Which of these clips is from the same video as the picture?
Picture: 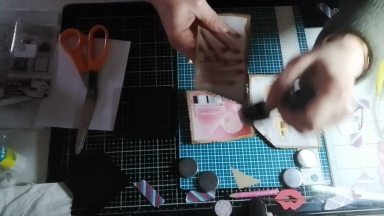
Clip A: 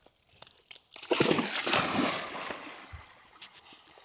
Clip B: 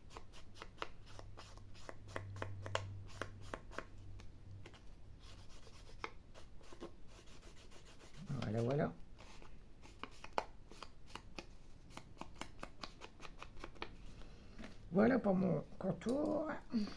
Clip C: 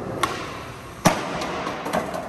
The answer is B